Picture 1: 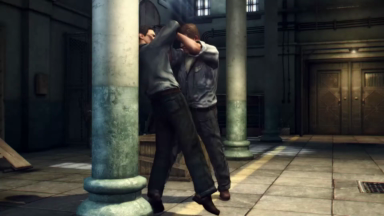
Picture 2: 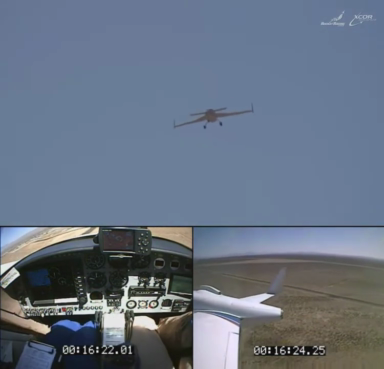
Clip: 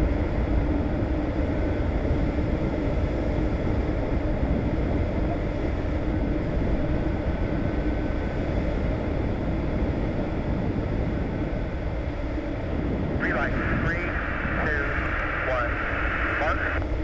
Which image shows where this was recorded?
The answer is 2